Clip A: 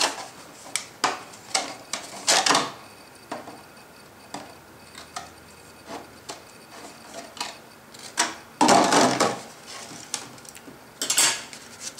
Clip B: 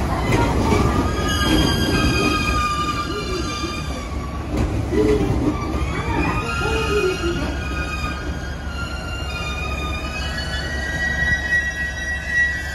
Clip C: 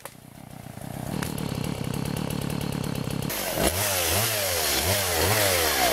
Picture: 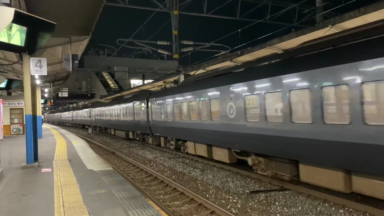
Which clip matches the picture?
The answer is B